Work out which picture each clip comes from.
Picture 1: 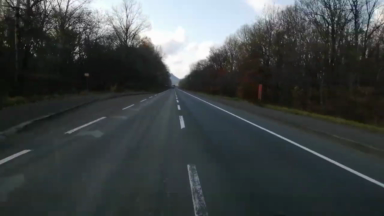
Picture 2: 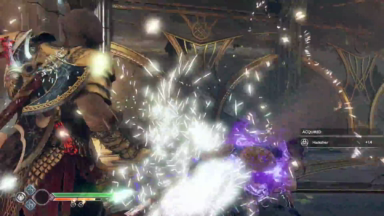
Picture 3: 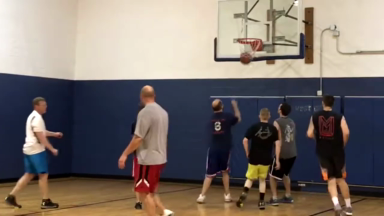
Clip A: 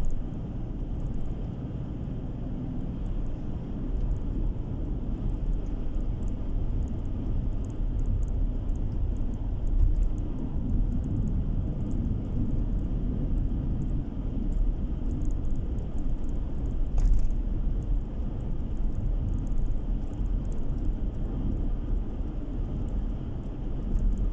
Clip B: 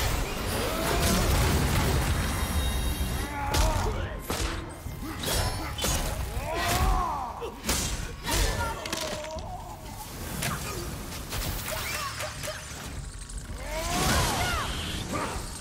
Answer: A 1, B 2